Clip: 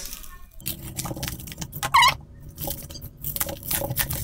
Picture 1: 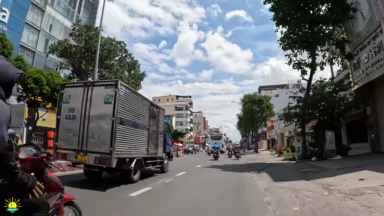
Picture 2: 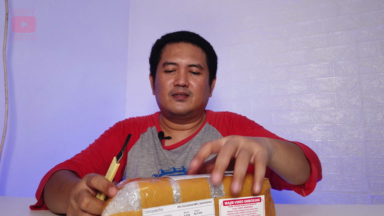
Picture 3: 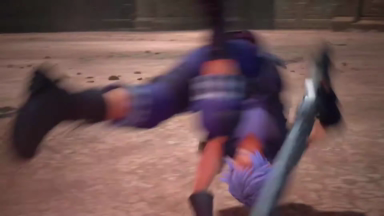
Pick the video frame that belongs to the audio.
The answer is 2